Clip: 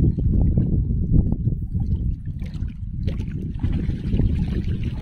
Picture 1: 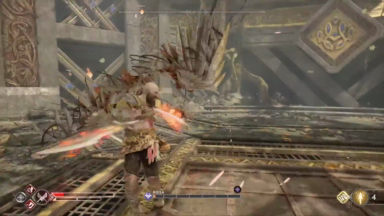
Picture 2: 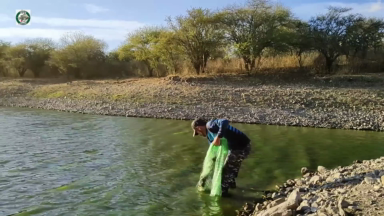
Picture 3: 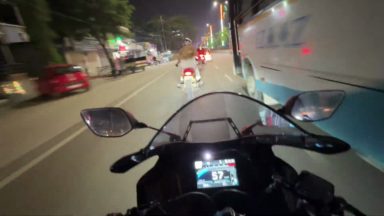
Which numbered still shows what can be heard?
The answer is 2